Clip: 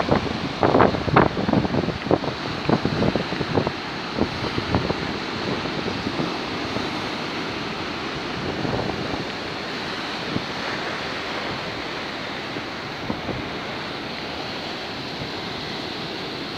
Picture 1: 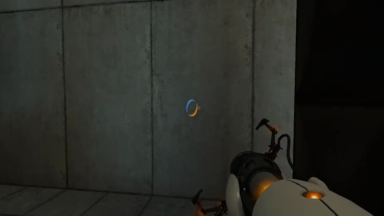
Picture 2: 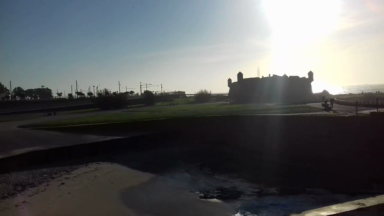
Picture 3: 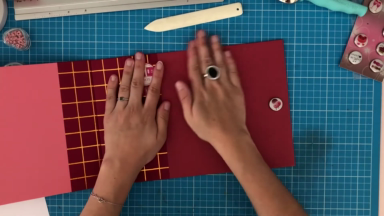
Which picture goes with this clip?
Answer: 2